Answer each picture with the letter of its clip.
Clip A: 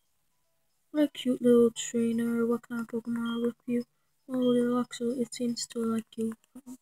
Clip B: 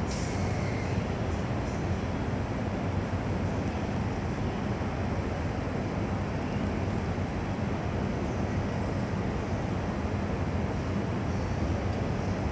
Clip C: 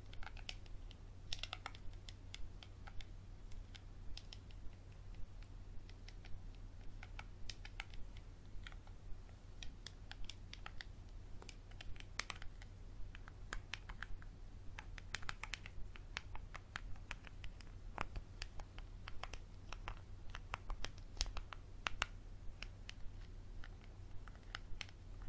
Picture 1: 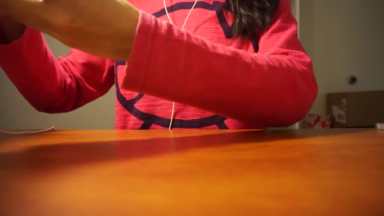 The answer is C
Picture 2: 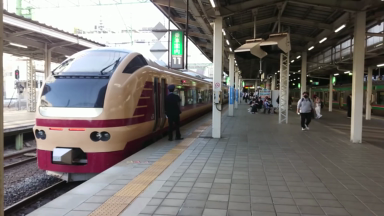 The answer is B